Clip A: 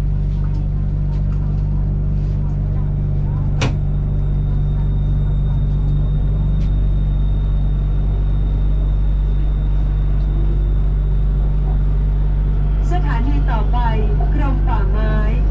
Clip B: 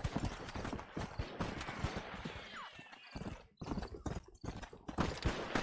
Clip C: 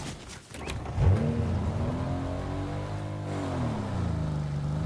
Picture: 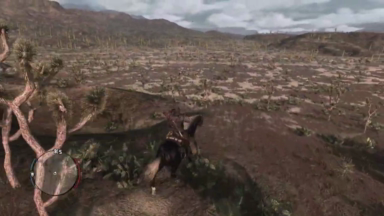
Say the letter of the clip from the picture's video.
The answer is B